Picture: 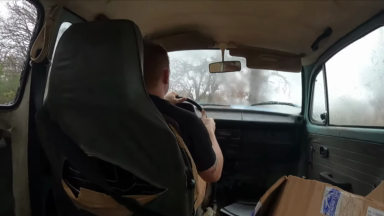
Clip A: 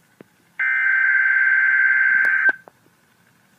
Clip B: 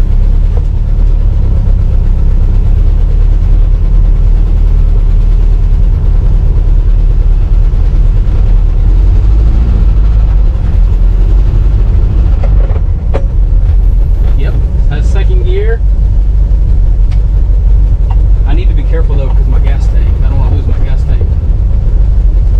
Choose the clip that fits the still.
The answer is B